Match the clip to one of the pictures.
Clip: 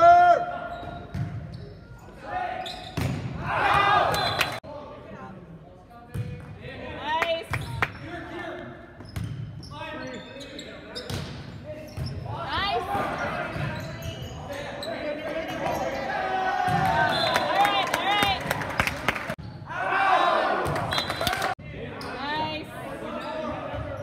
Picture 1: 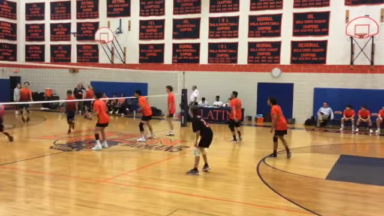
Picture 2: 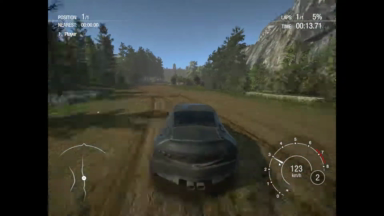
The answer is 1